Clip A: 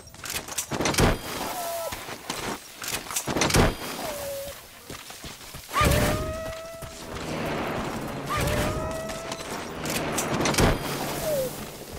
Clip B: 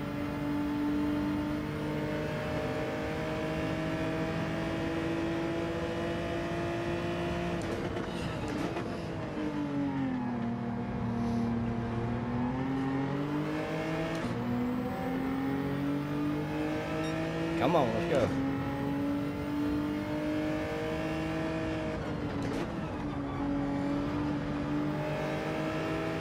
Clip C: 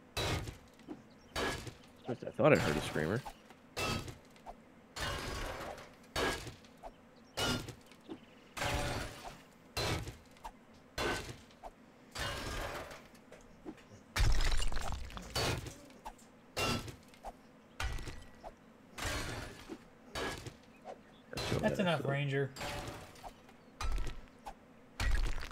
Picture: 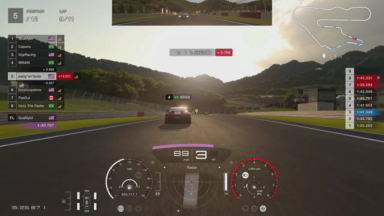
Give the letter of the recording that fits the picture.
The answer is B